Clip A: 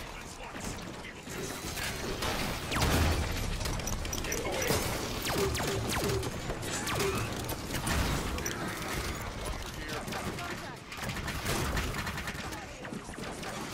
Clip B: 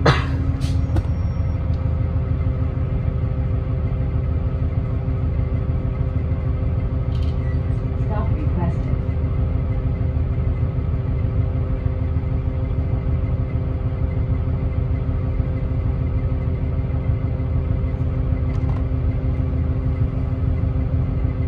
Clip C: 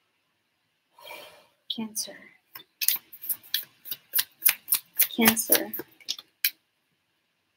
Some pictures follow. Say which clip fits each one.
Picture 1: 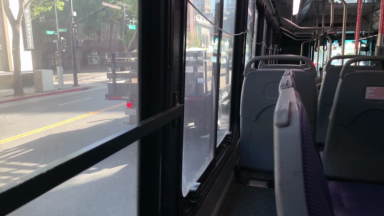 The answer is B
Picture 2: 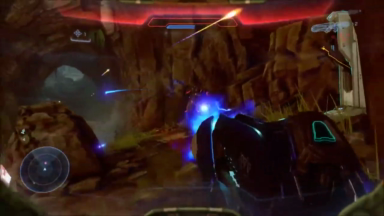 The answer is A